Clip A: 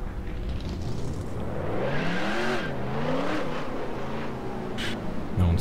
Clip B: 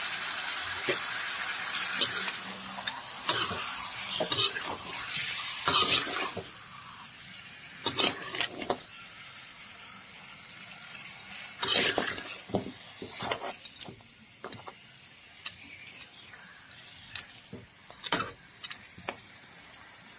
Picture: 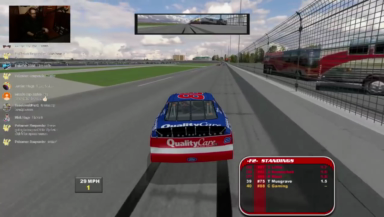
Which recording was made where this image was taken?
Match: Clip A